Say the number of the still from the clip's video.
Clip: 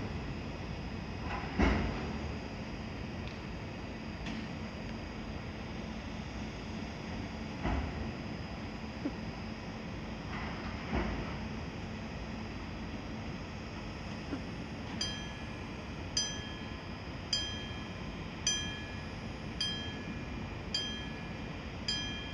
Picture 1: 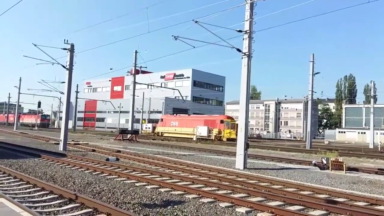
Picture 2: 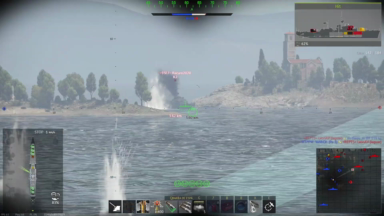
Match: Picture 1